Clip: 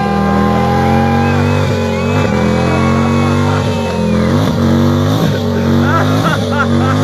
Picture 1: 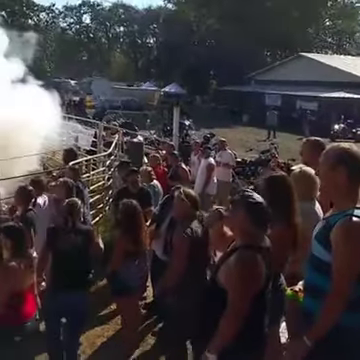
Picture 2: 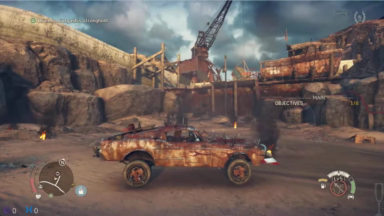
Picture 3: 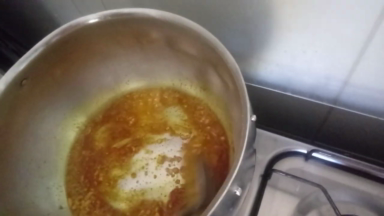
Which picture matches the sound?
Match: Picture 1